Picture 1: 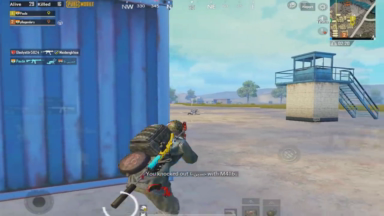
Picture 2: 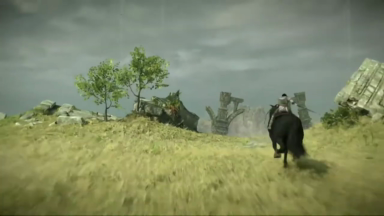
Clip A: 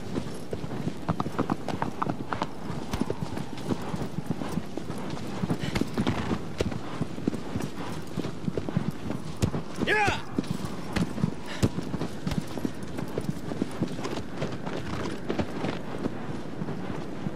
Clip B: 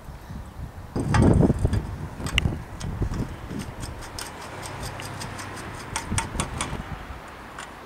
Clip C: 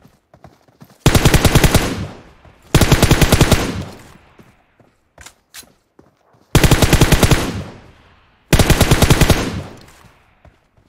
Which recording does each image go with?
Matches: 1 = C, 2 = A